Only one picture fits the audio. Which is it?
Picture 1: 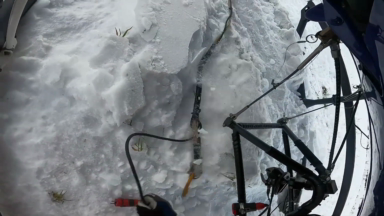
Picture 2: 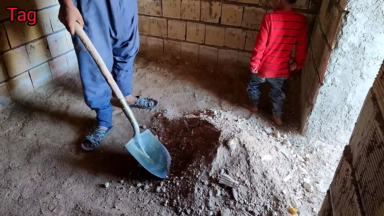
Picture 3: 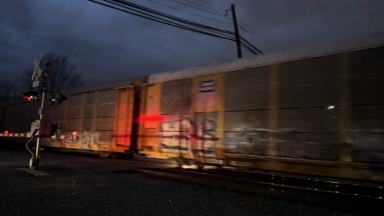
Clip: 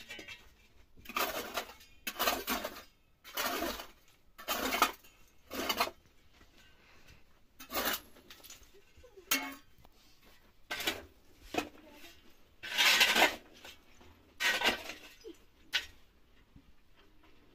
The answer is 2